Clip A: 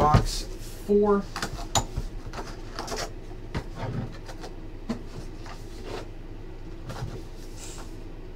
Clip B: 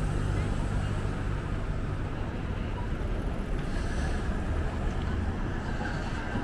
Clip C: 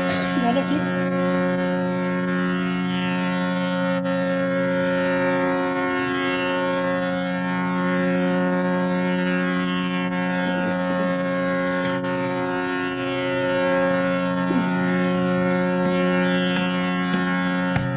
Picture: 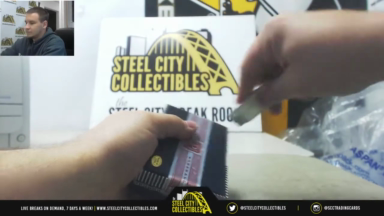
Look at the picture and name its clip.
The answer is A